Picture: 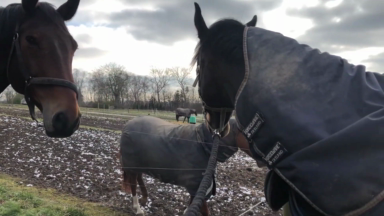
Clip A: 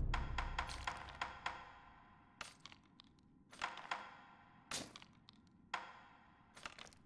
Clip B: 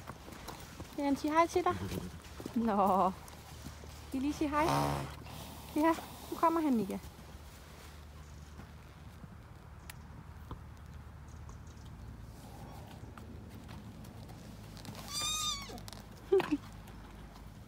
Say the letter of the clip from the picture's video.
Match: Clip B